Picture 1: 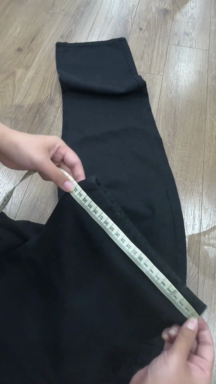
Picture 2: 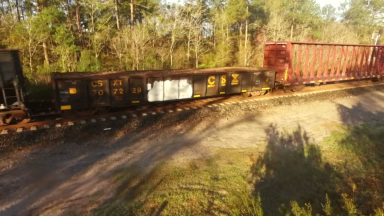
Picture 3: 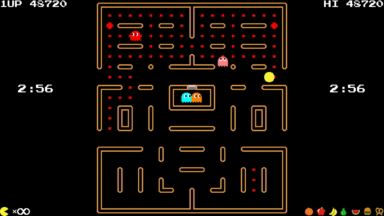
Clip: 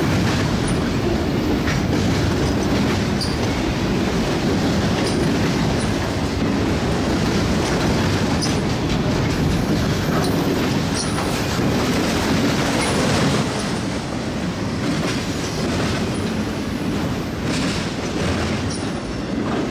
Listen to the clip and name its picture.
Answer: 2